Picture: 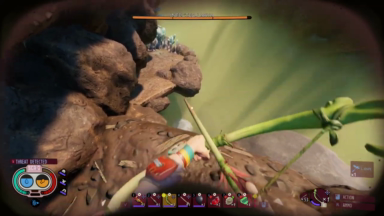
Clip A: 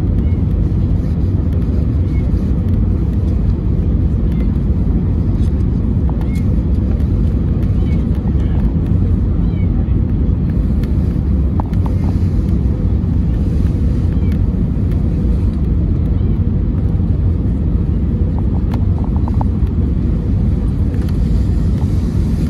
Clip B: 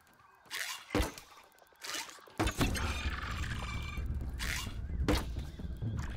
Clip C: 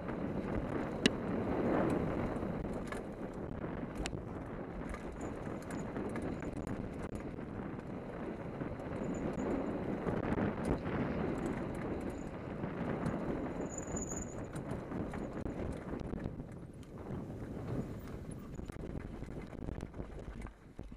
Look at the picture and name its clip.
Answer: B